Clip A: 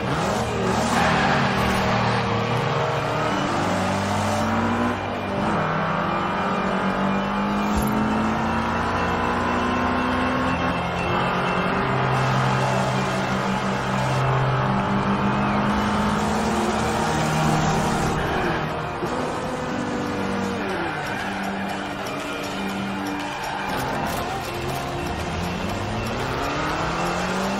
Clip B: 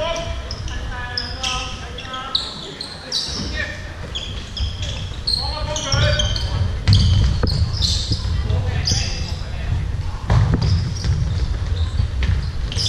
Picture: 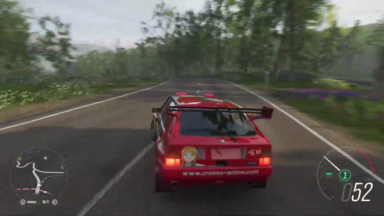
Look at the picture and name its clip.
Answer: A